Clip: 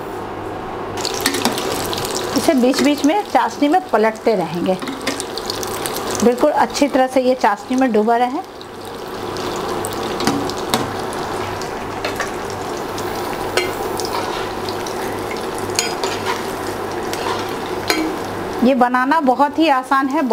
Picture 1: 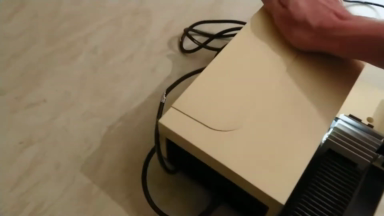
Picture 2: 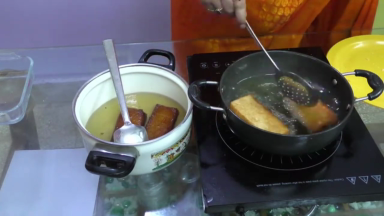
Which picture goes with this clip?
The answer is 2